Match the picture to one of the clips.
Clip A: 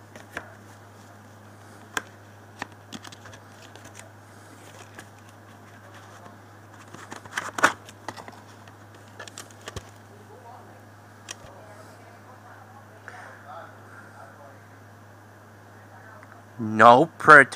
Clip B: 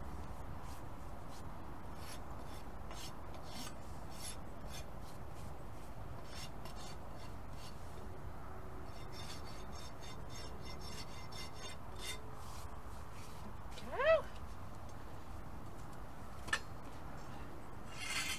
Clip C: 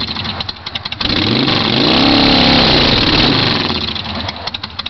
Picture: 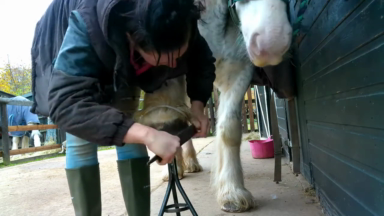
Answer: B